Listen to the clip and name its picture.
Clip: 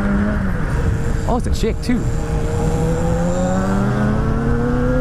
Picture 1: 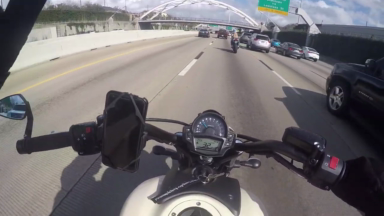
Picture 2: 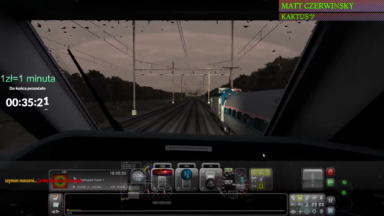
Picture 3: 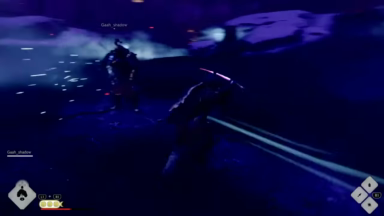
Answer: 1